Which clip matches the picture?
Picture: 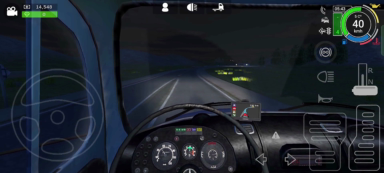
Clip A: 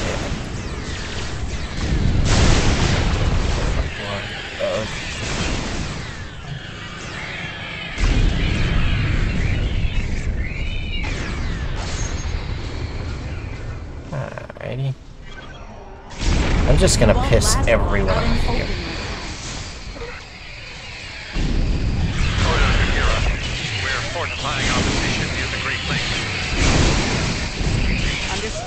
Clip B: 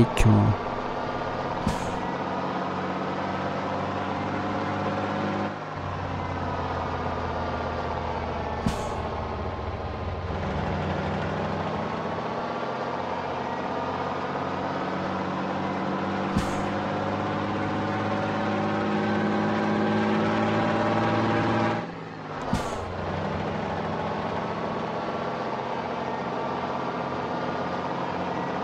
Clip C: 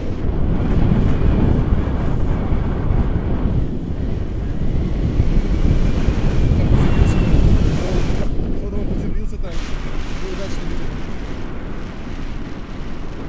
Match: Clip B